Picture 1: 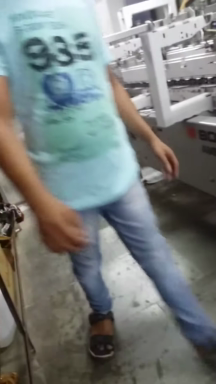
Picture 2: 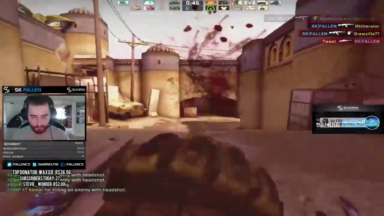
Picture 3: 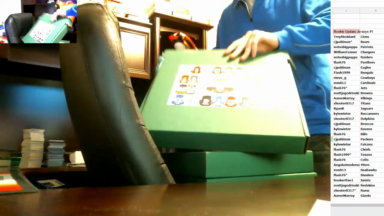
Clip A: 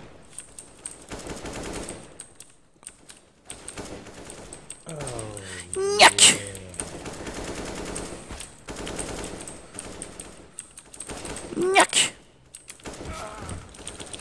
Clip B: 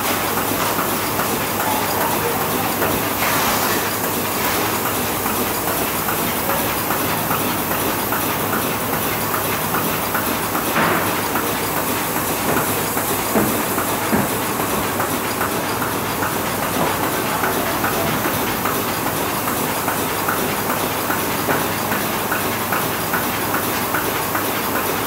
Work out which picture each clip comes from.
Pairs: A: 2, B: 1